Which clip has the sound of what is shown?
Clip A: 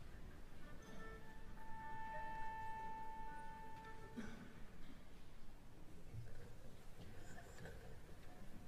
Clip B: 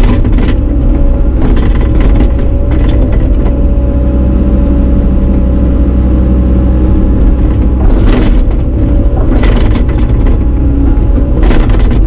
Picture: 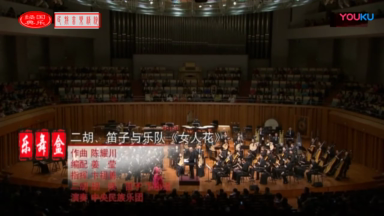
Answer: A